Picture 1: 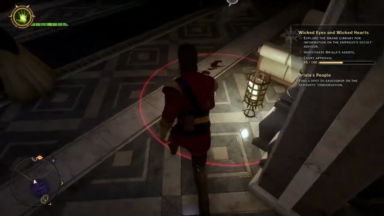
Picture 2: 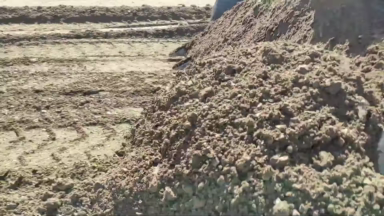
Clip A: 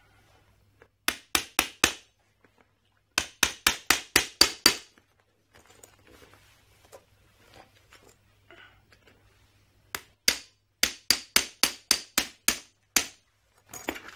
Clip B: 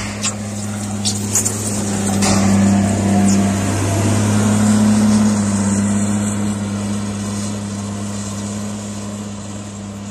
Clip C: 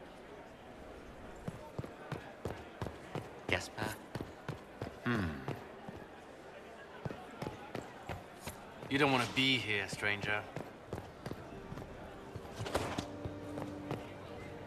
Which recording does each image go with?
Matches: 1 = C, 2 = B